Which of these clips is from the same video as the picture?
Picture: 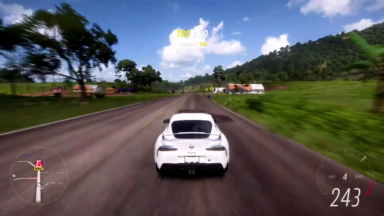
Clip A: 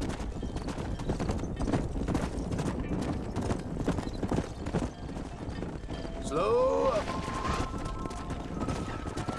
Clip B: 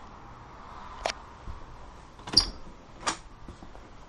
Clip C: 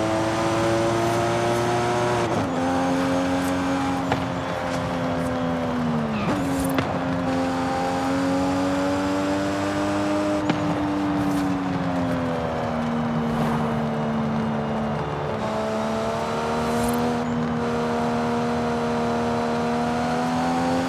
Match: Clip C